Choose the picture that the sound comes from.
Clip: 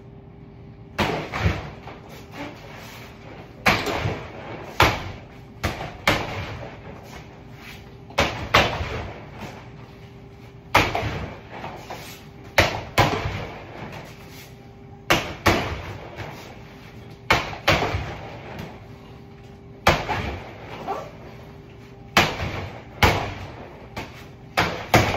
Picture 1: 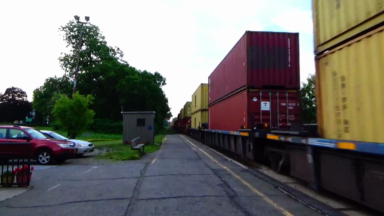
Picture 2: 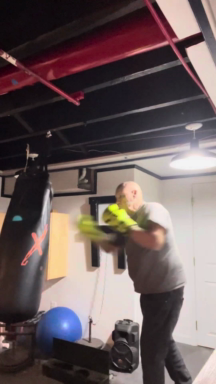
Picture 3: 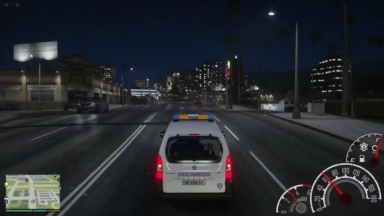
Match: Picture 2